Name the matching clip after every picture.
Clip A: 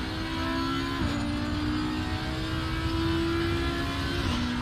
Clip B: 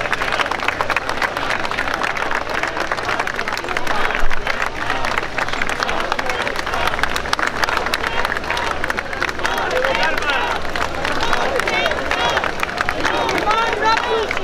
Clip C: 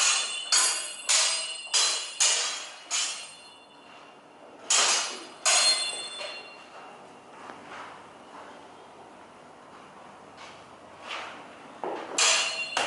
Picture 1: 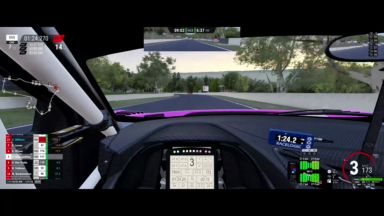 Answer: A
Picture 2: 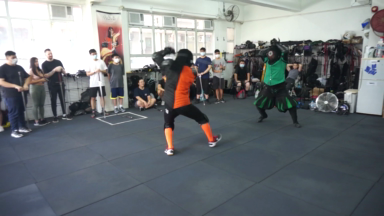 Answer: C